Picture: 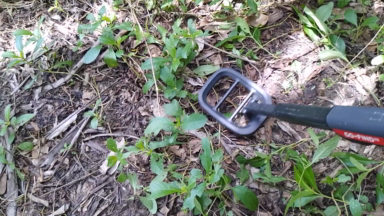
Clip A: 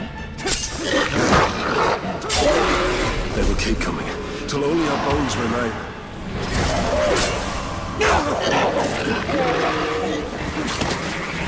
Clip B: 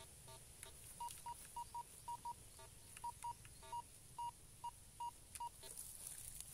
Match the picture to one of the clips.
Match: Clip B